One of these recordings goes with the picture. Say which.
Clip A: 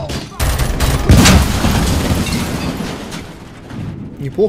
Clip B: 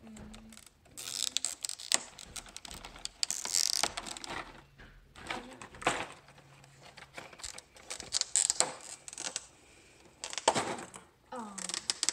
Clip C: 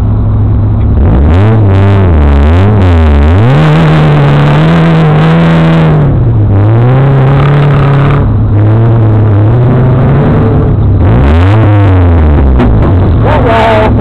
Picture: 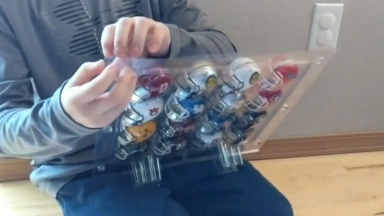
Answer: B